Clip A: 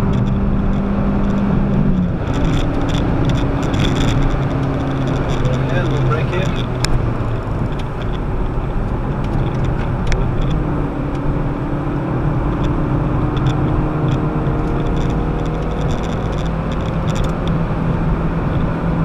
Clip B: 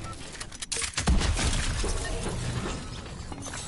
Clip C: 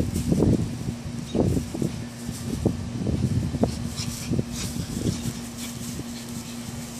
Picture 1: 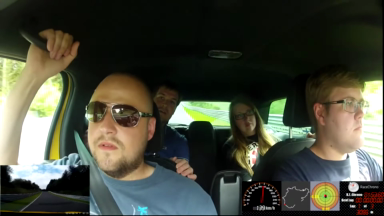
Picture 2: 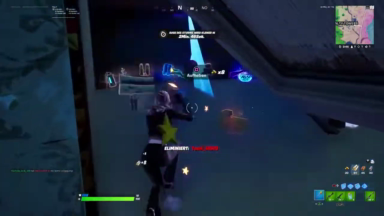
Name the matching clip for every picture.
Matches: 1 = A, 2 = B